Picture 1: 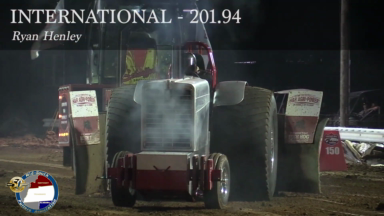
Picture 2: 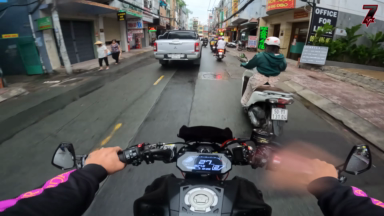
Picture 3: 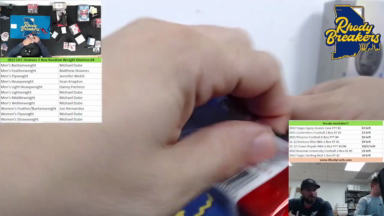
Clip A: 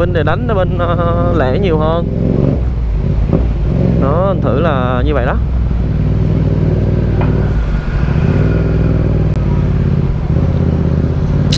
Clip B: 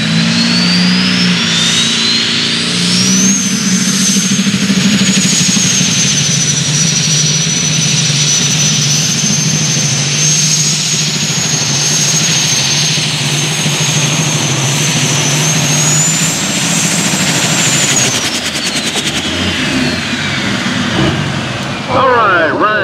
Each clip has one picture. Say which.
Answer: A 2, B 1